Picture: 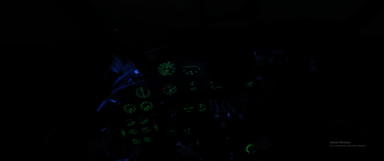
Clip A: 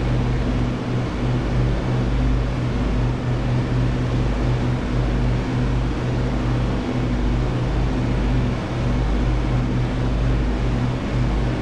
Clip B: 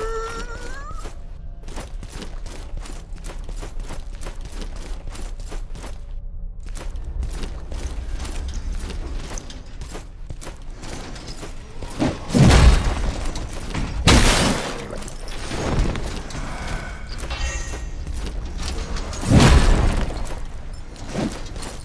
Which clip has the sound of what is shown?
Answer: A